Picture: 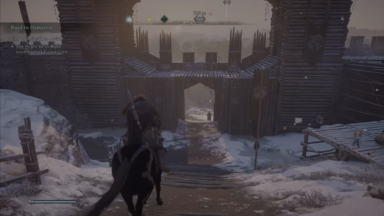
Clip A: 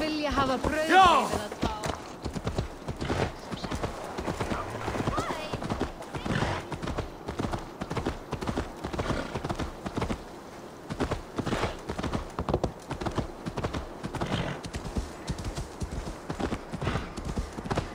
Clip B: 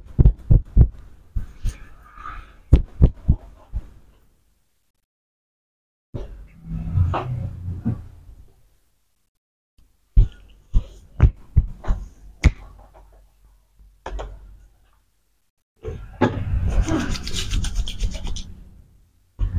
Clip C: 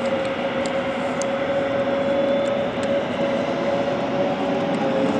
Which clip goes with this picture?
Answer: A